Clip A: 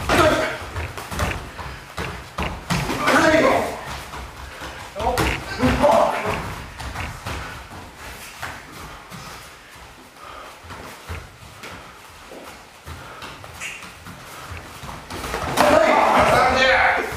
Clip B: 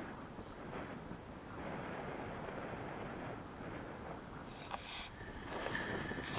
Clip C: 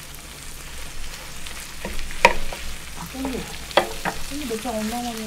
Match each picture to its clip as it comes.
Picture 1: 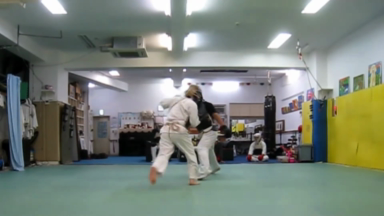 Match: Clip A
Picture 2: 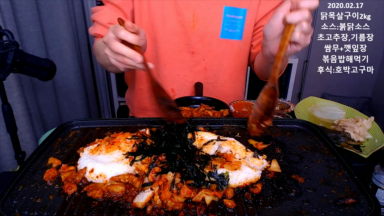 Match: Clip C